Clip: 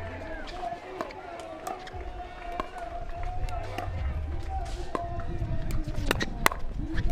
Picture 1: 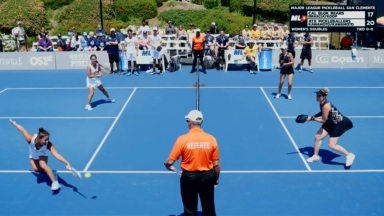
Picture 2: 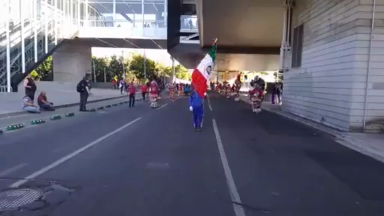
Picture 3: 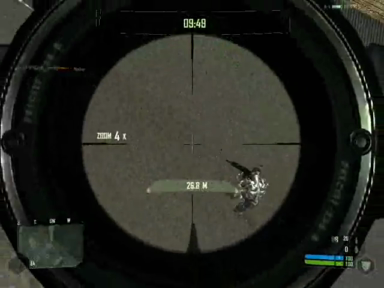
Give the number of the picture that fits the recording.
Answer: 1